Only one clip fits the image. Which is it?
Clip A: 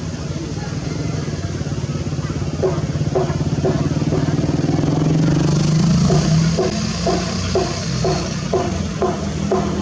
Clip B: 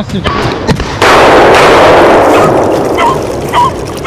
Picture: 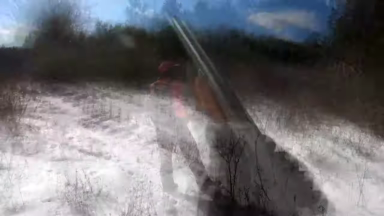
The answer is B